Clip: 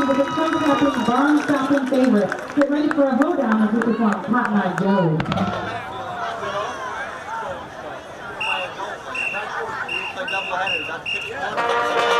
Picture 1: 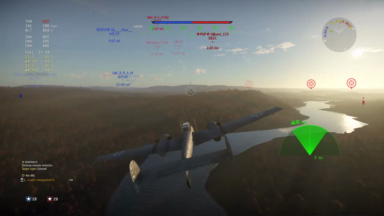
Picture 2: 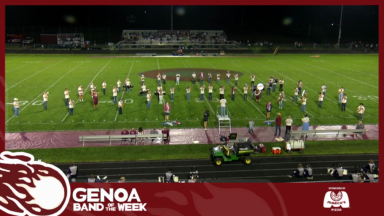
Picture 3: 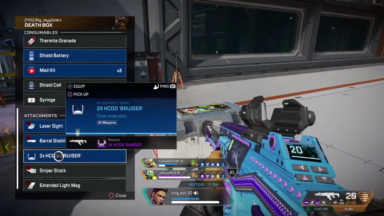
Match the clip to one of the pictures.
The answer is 2